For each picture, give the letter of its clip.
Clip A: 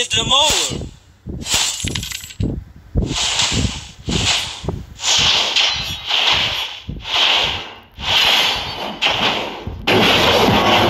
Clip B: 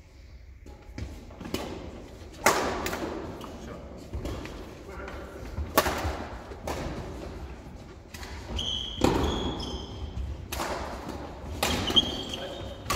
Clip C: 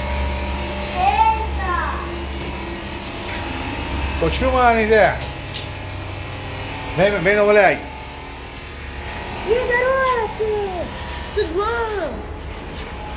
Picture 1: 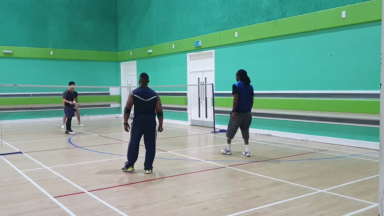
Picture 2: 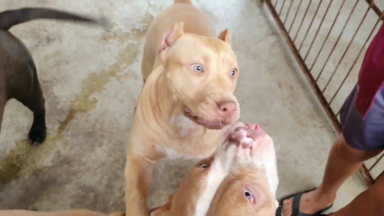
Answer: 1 B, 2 C